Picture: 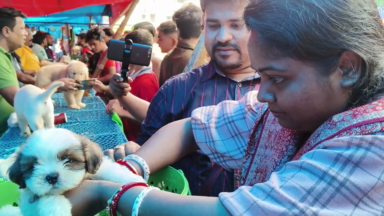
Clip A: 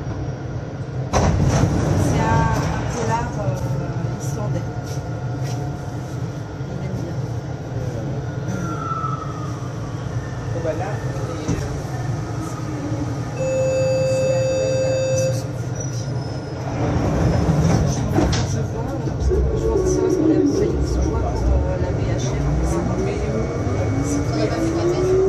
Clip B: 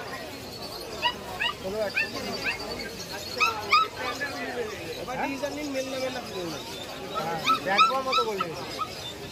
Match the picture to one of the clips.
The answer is B